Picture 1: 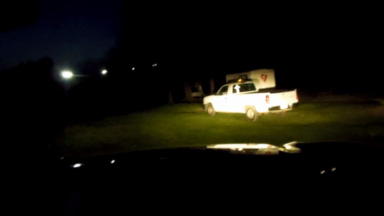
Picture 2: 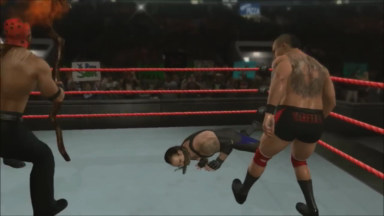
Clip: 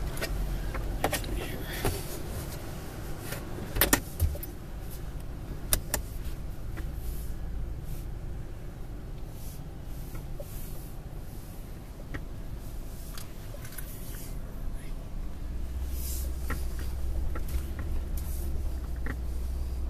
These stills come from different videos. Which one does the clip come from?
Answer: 1